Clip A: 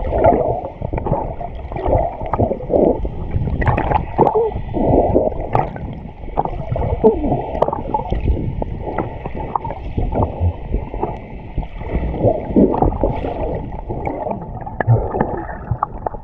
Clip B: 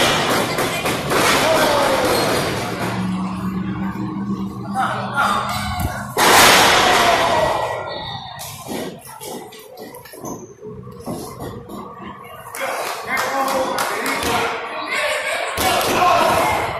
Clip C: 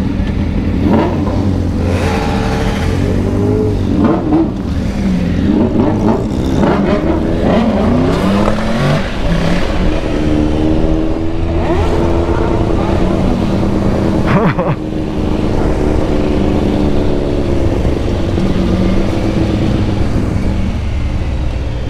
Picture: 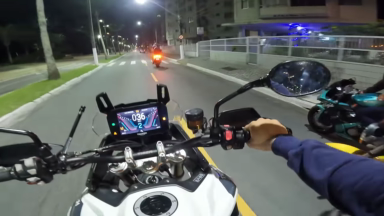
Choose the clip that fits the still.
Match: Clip C